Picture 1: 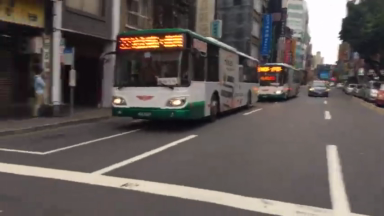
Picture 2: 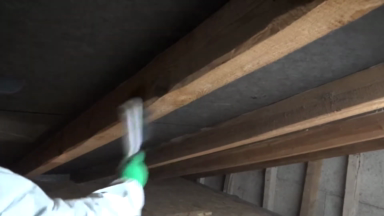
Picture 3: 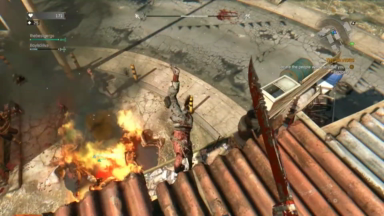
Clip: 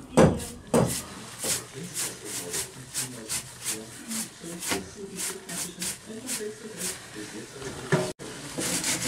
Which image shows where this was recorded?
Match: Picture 2